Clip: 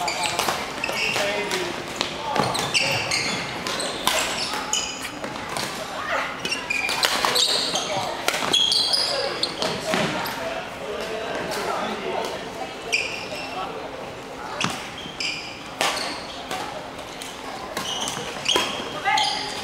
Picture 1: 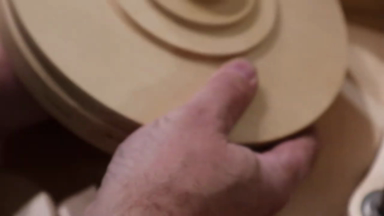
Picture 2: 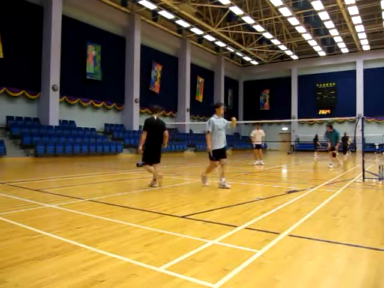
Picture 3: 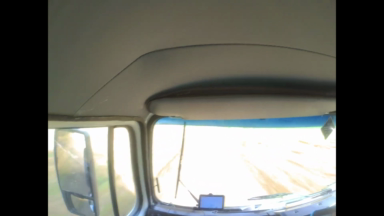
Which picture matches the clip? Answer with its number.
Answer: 2